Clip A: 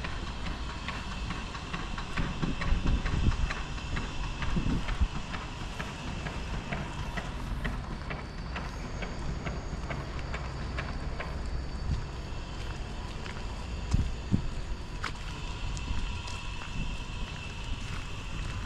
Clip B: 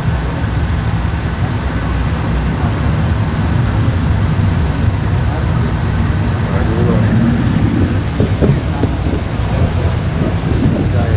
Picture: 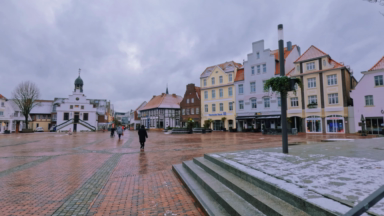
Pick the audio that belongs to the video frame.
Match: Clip A